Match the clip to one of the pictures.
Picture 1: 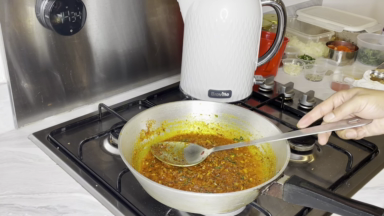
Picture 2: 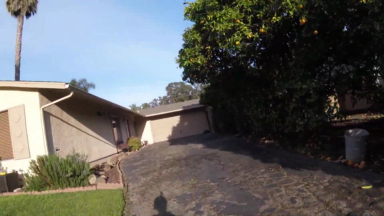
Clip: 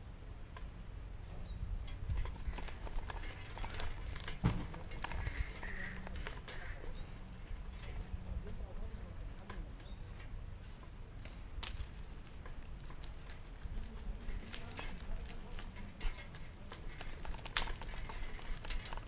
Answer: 2